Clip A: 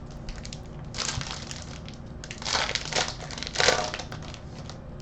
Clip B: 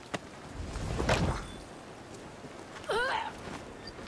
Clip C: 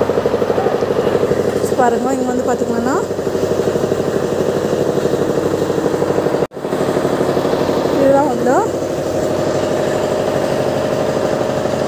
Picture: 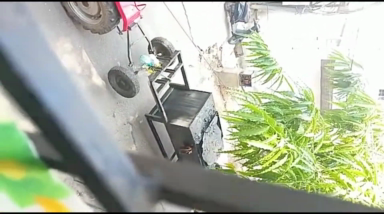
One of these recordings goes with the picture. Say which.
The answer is C